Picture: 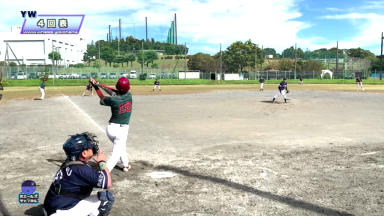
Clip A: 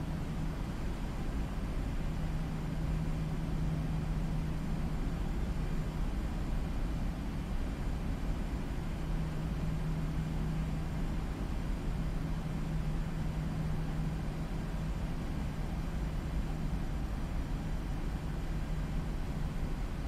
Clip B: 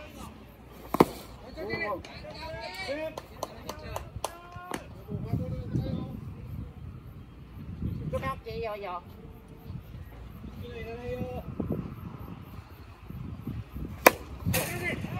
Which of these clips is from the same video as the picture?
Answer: B